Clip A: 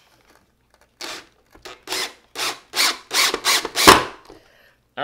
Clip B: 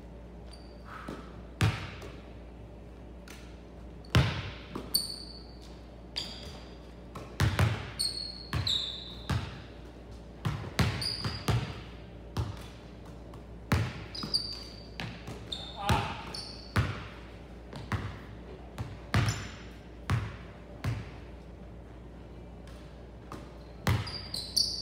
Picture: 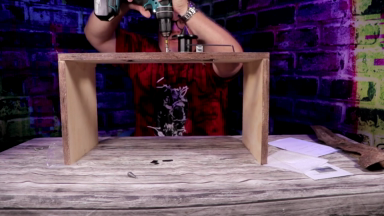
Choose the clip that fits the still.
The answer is A